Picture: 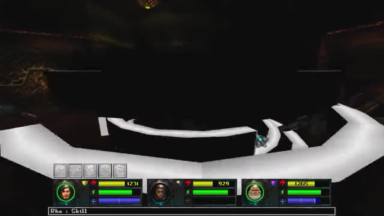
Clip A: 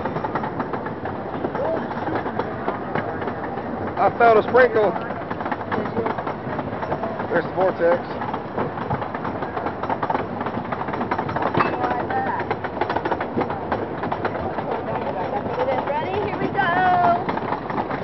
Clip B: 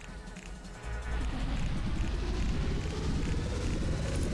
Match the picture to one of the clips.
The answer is B